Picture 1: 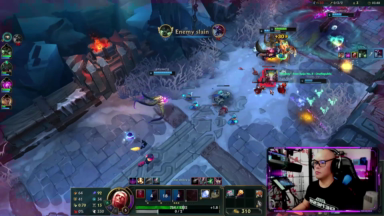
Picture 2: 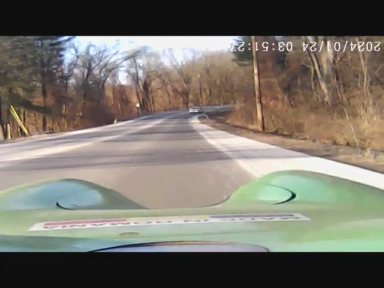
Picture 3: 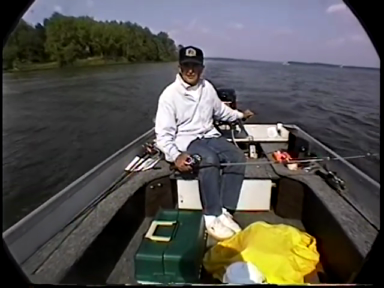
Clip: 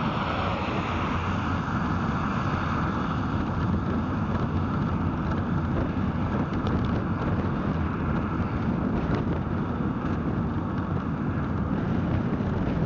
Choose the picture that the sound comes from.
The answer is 2